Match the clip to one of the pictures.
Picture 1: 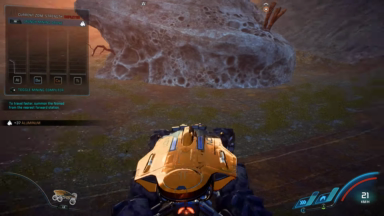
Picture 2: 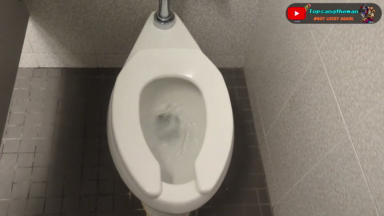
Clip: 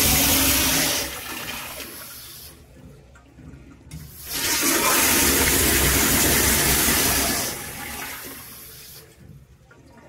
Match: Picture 2